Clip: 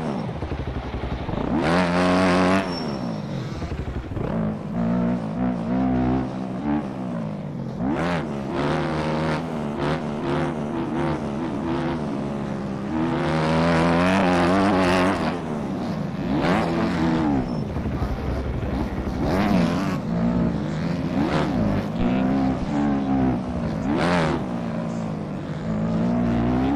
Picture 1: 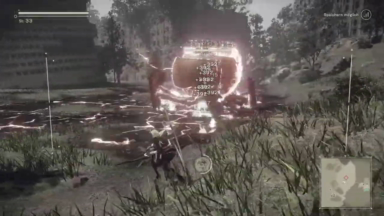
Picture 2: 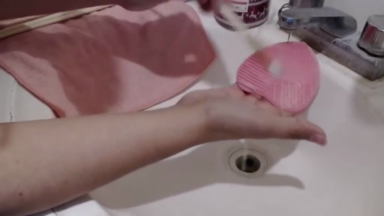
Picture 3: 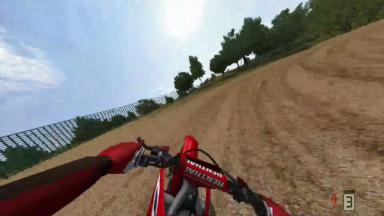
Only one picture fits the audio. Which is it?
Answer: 3